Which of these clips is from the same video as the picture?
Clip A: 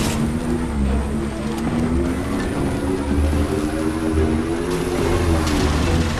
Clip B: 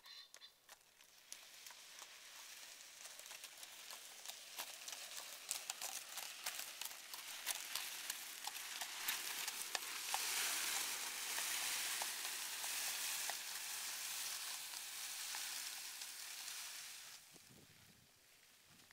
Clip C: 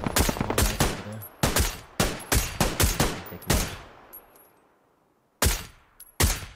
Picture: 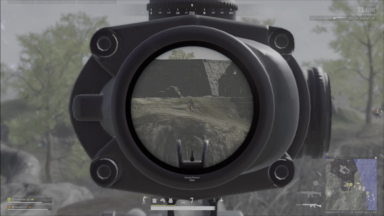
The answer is C